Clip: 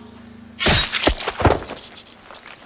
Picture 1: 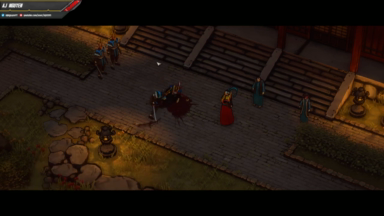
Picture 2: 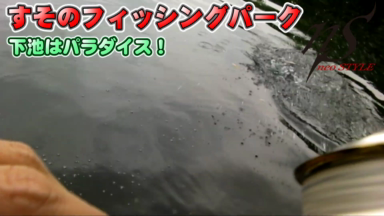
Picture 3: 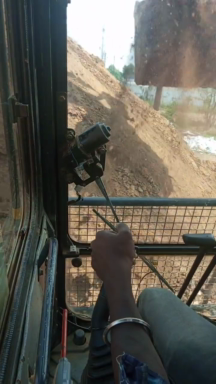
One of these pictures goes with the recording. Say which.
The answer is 1